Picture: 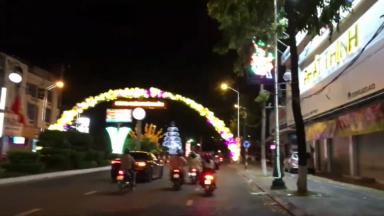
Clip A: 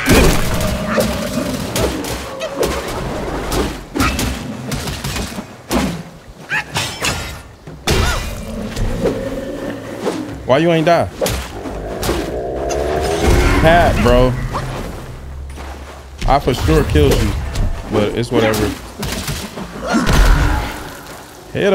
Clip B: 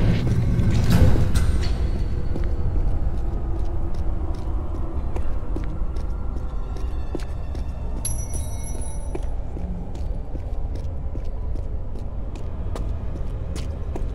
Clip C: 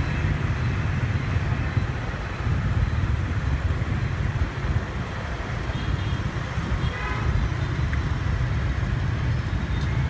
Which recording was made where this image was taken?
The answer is C